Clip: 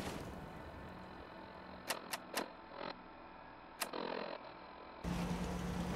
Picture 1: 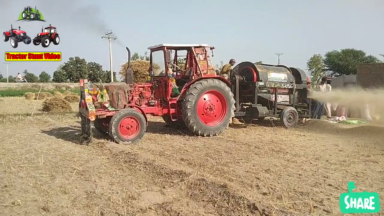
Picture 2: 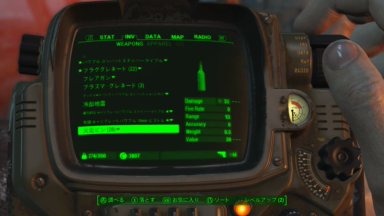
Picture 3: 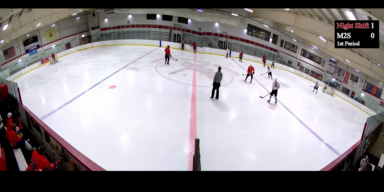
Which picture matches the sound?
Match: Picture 2